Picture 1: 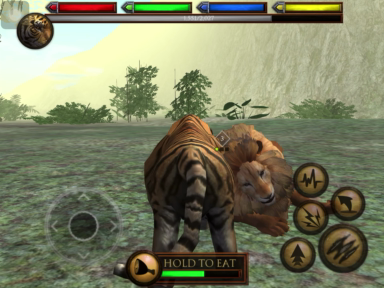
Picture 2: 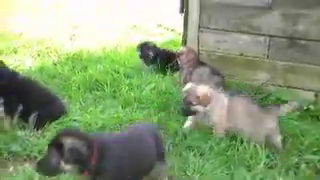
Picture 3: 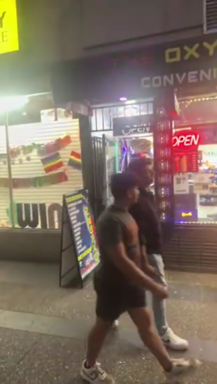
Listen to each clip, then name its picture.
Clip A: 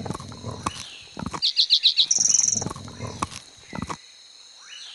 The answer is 1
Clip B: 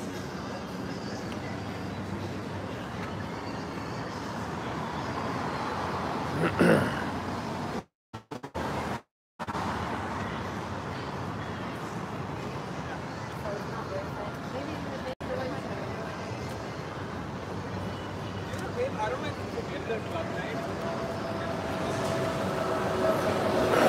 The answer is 3